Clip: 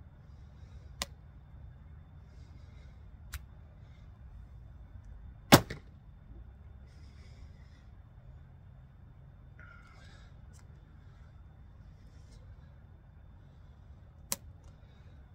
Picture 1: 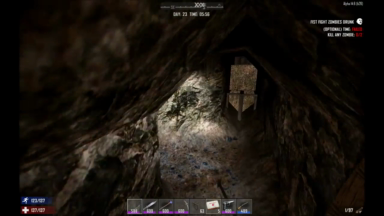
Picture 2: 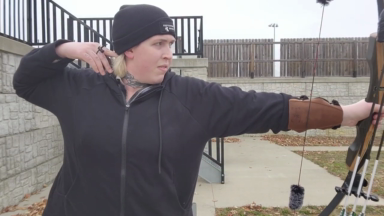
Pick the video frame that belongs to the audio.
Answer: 2